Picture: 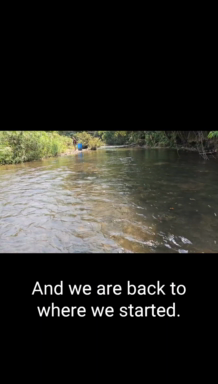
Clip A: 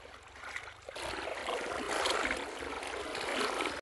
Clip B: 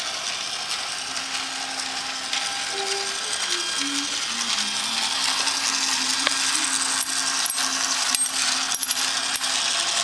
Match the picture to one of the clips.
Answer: A